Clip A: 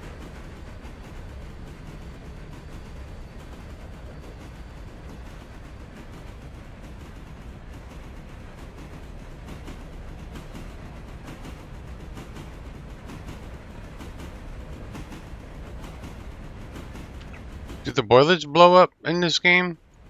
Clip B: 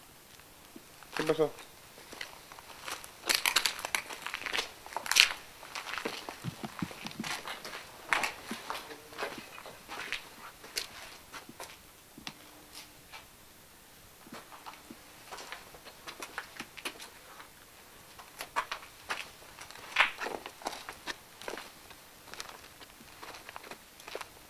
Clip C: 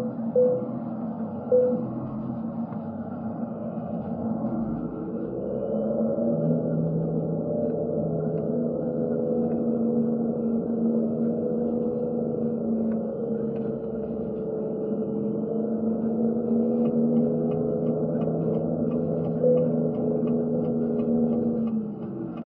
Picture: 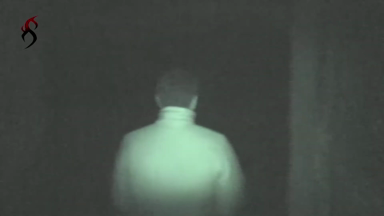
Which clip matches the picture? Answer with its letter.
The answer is B